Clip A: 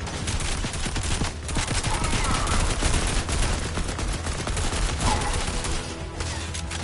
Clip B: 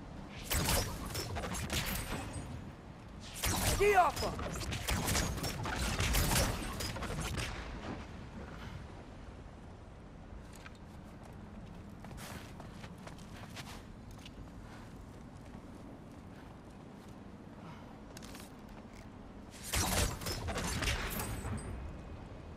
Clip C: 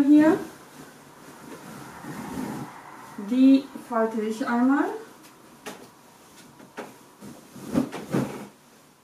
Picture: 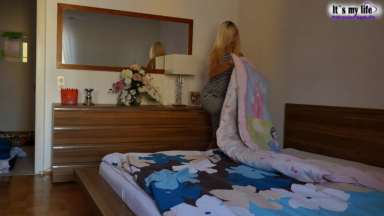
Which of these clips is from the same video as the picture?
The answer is C